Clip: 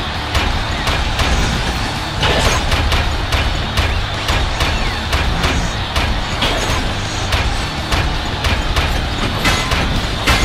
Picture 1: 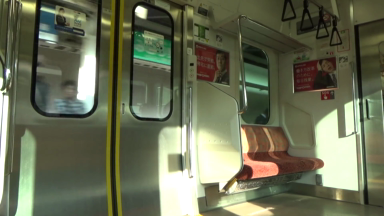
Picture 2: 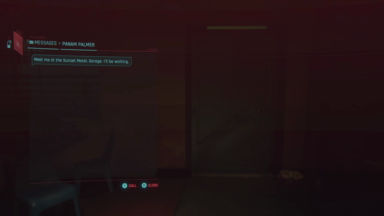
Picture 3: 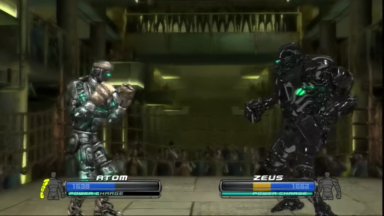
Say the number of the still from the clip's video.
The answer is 3